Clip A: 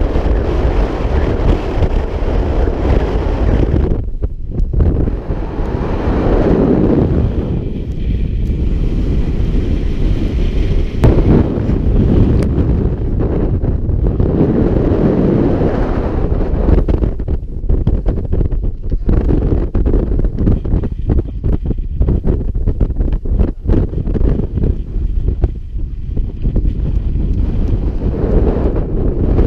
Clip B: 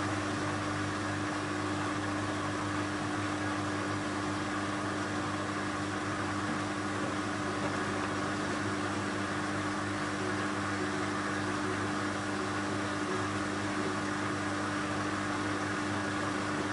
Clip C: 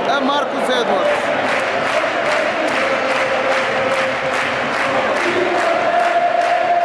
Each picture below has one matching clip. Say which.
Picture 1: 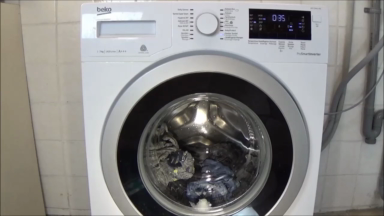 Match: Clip B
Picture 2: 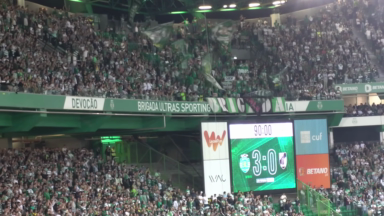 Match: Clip C